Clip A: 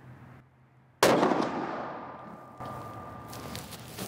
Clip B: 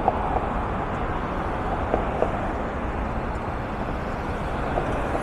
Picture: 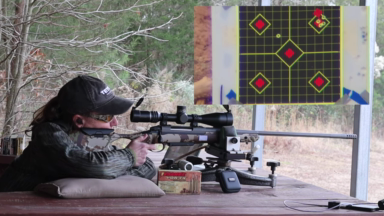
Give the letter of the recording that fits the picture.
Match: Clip A